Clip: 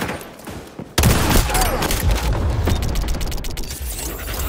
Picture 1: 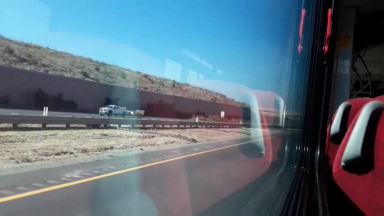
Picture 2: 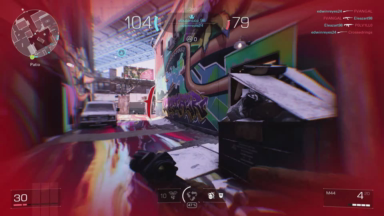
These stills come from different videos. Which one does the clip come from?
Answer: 2